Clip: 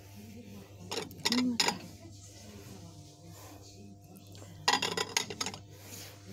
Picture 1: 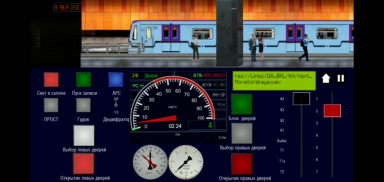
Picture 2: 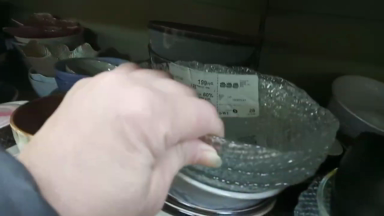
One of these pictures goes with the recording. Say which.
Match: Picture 2